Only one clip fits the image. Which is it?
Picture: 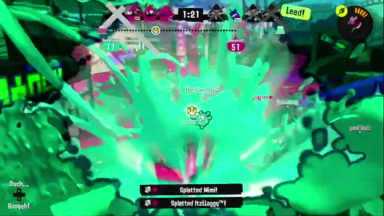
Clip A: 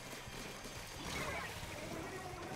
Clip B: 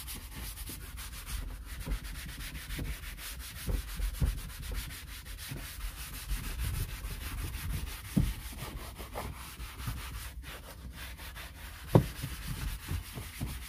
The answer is A